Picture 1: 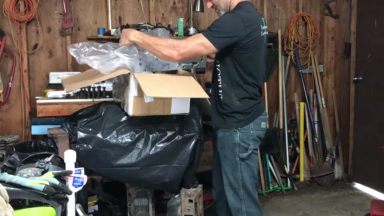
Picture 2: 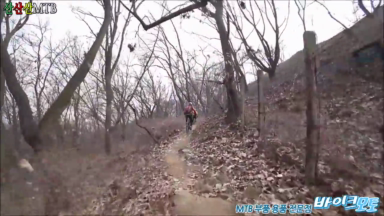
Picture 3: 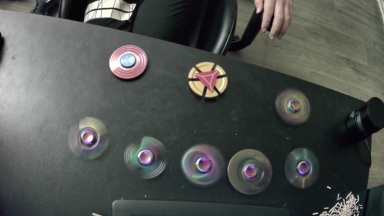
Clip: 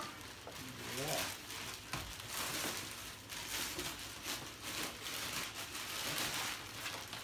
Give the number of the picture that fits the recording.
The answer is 1